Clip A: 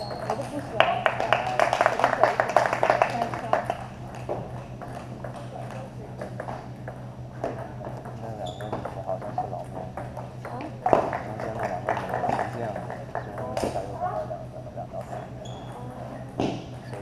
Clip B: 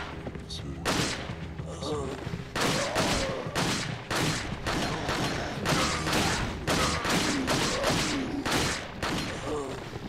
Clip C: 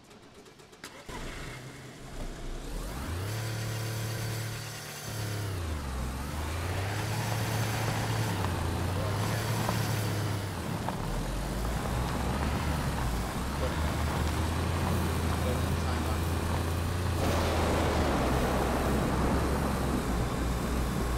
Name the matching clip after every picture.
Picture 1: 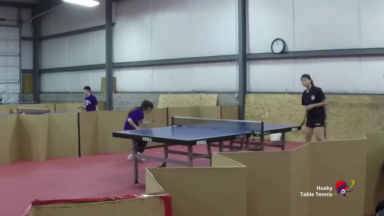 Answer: A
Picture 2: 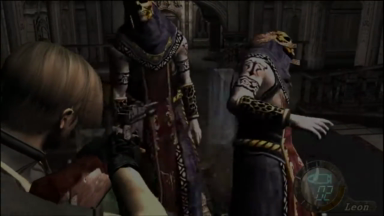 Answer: B